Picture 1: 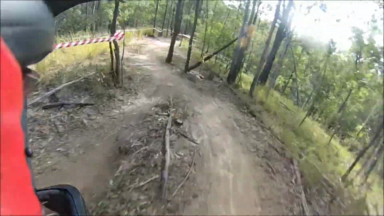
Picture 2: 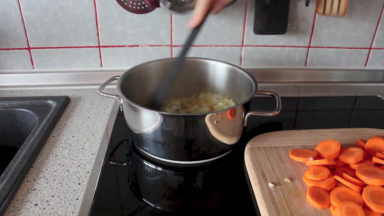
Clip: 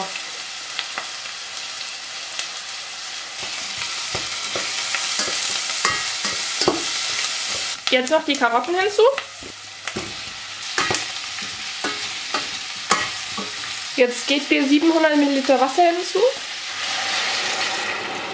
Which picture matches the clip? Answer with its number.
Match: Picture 2